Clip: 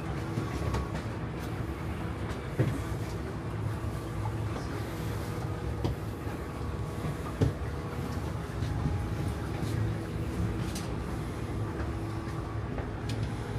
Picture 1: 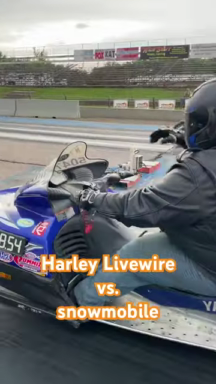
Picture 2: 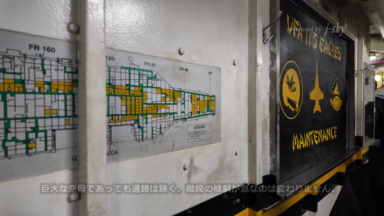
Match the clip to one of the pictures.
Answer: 2